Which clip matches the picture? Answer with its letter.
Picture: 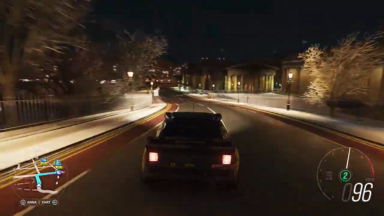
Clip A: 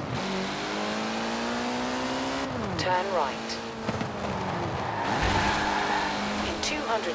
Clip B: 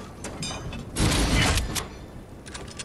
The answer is A